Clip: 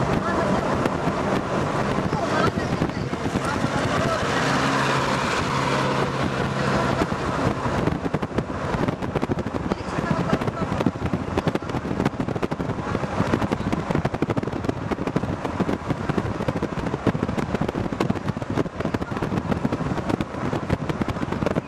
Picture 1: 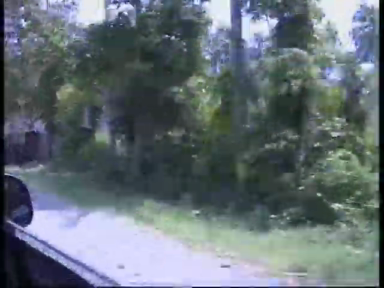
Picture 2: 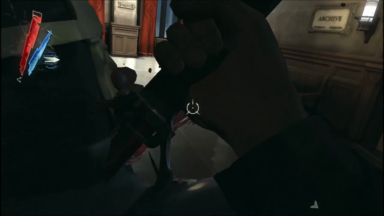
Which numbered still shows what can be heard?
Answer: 1